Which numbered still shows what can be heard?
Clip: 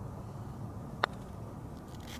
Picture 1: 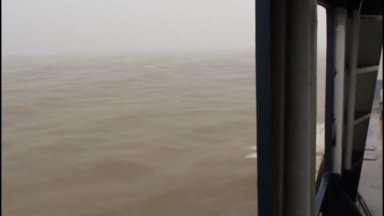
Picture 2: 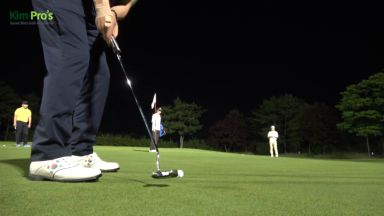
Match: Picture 2